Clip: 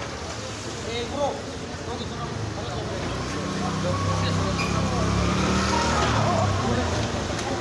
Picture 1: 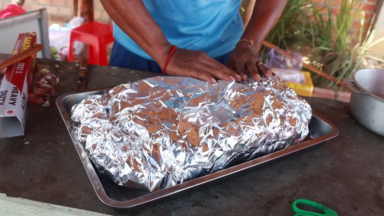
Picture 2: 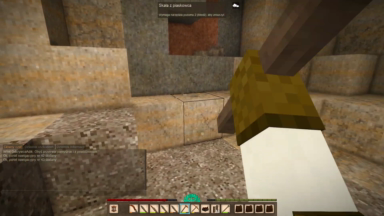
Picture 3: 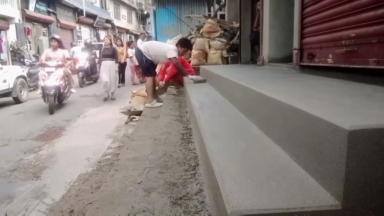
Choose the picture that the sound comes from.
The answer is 3